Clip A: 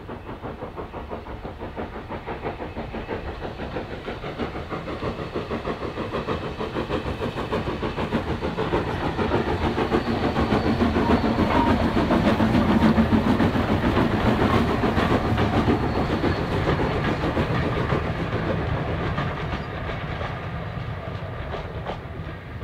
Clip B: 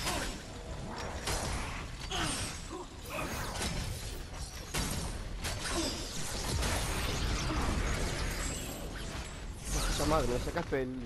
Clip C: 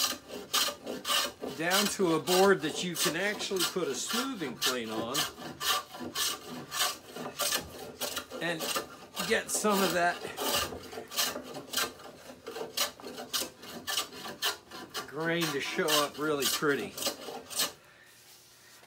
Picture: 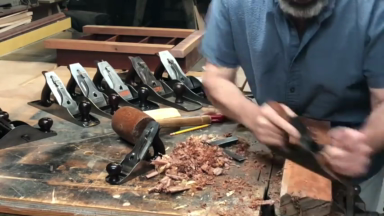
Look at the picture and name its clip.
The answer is C